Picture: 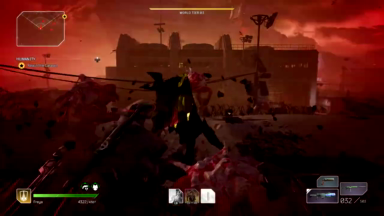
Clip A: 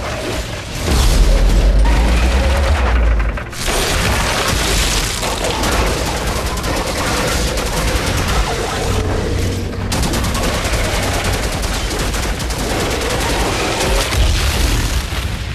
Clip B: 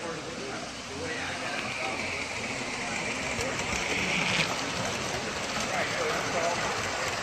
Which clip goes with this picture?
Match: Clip A